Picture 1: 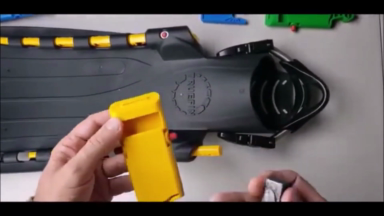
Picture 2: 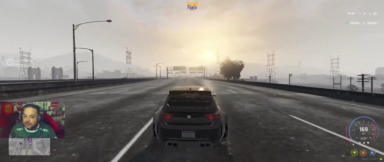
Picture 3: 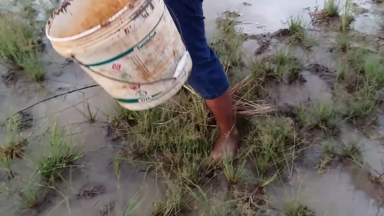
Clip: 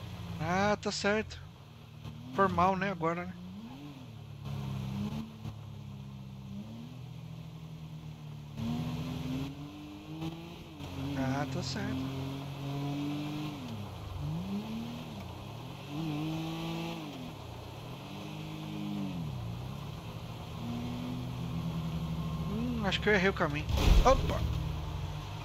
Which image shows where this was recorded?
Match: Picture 2